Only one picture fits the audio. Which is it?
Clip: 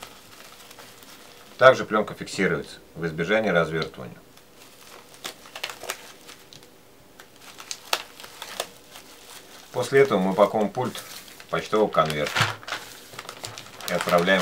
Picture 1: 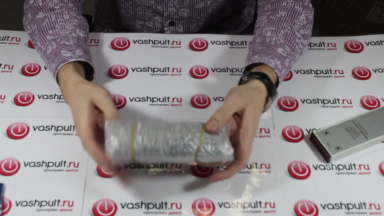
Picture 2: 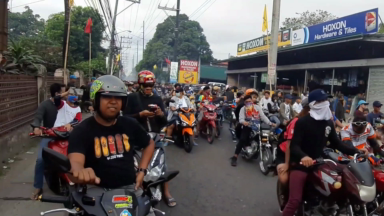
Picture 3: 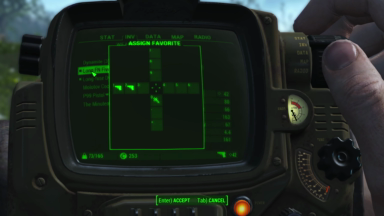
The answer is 1